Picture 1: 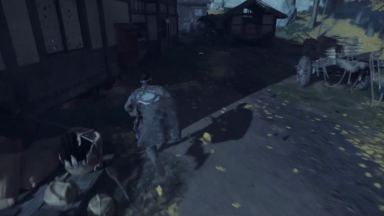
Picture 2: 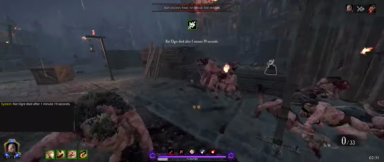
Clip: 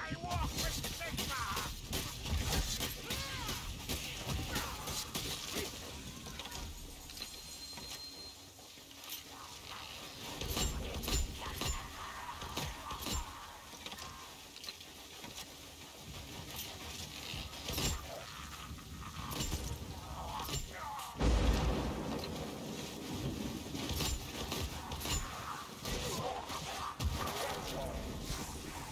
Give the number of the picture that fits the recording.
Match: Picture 2